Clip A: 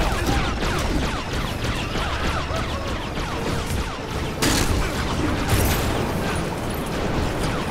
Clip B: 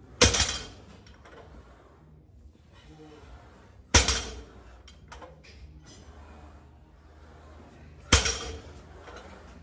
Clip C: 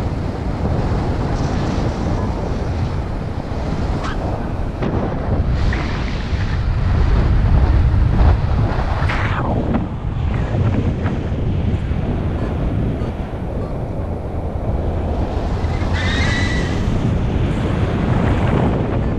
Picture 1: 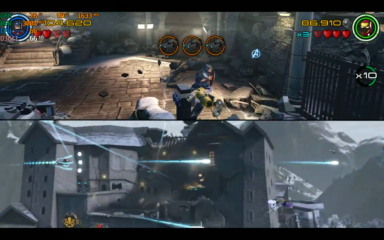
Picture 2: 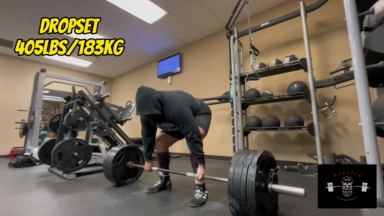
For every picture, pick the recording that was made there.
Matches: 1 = A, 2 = B